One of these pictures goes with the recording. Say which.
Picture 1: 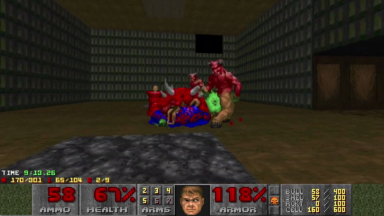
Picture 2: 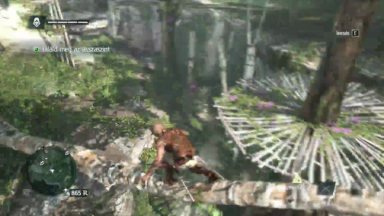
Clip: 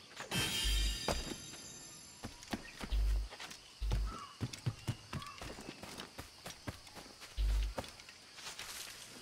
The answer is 2